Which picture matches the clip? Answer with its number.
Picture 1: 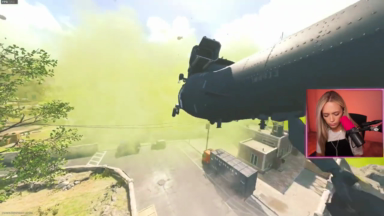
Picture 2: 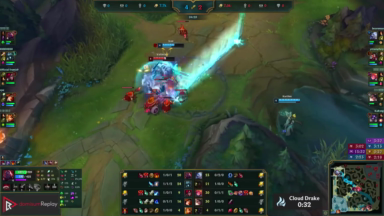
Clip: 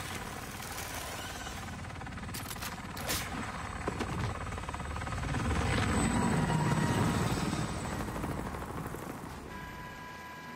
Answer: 1